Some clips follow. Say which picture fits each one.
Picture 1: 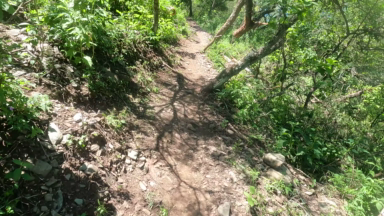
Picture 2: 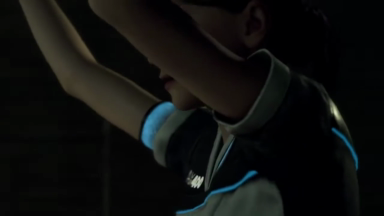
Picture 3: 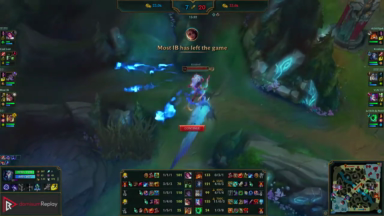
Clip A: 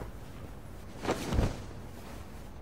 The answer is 2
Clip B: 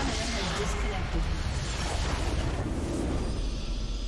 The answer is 3